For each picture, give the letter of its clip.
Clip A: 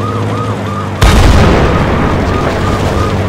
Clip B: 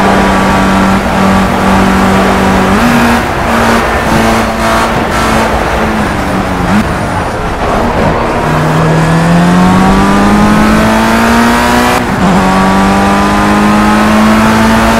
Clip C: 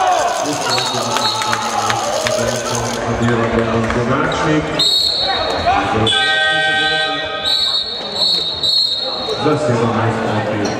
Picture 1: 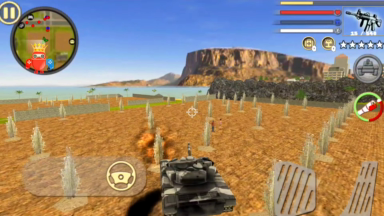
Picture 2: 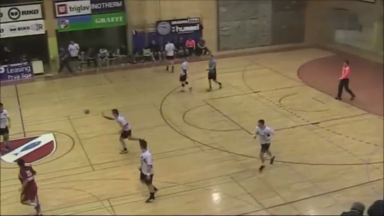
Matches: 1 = A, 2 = C